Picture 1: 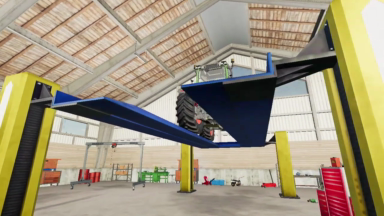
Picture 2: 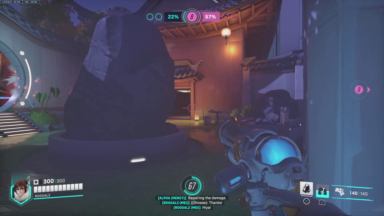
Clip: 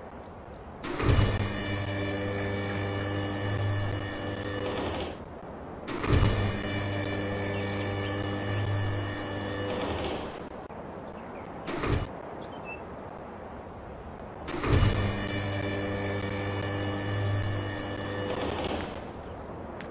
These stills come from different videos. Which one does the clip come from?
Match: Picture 1